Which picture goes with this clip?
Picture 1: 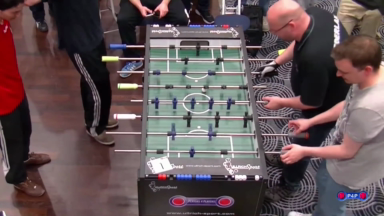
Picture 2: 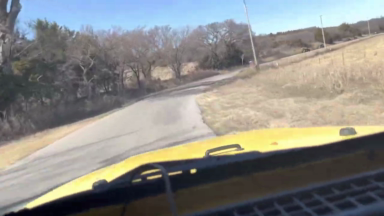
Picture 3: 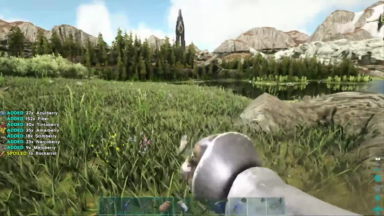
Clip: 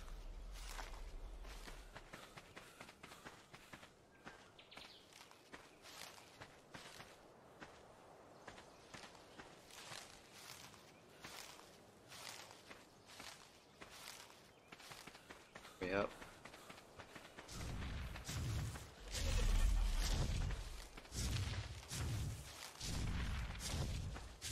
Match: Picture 3